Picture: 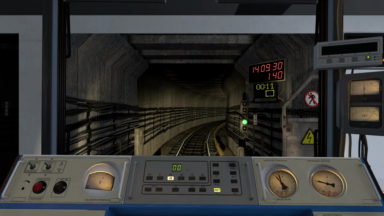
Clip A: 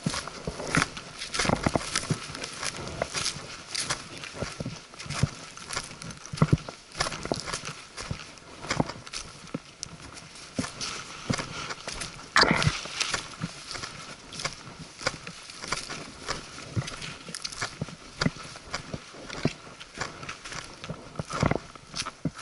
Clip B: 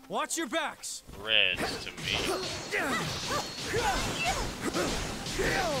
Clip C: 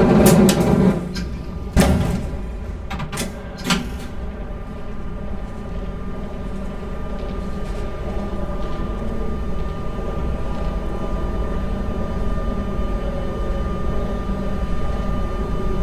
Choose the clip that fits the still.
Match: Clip C